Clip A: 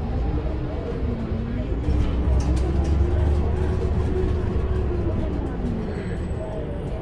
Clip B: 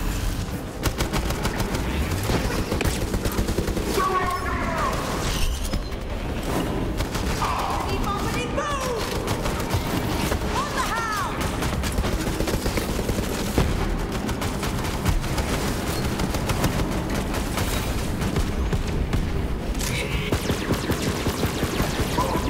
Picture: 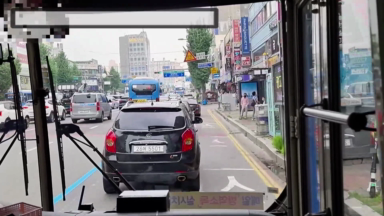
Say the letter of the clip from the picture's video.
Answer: A